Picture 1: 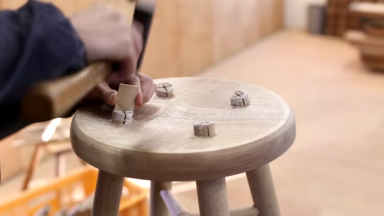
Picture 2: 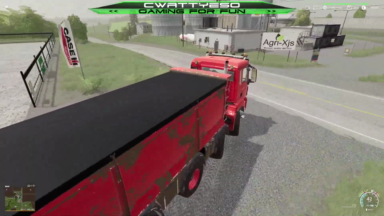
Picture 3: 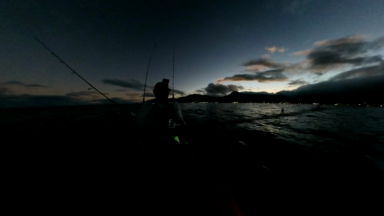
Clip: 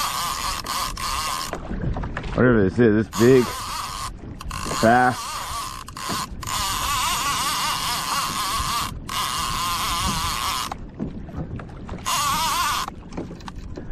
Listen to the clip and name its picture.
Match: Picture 3